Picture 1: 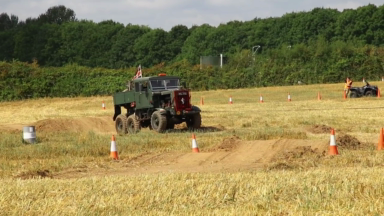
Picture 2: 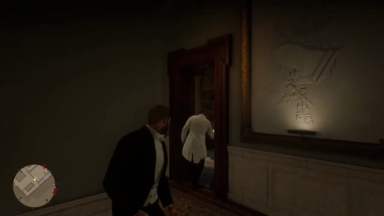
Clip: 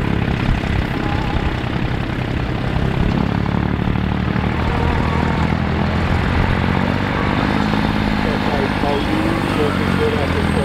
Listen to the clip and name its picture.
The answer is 1